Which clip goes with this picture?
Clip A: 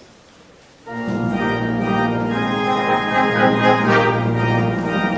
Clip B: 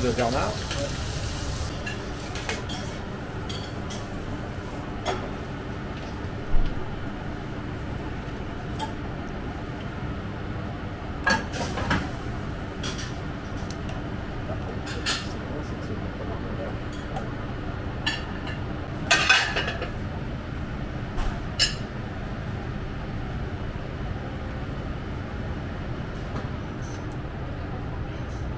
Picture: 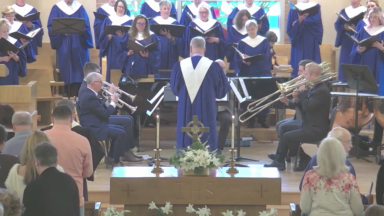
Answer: A